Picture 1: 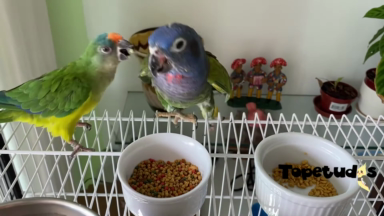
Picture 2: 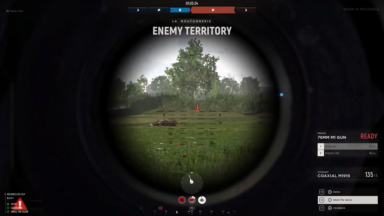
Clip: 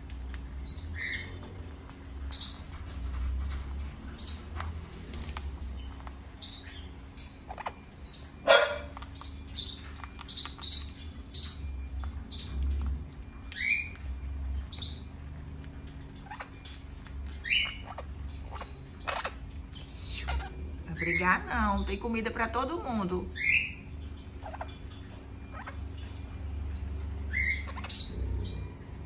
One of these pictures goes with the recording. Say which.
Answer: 1